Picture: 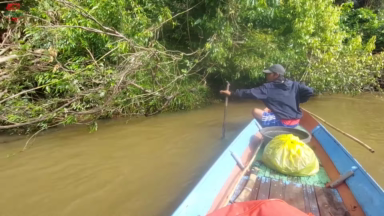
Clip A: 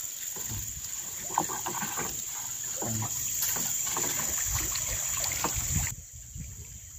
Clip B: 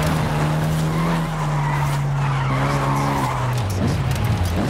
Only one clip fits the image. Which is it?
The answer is A